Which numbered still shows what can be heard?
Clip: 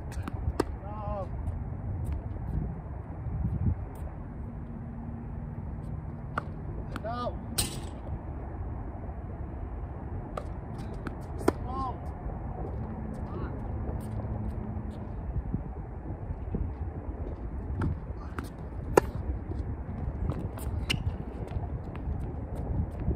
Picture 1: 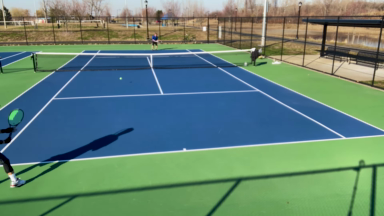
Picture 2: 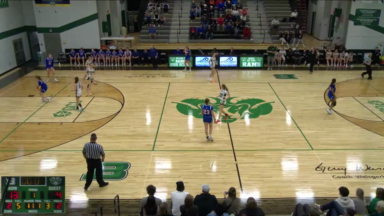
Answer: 1